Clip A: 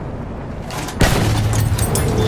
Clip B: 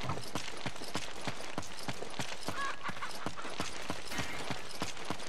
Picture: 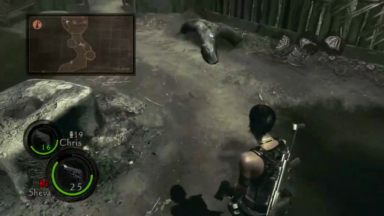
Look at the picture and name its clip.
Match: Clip B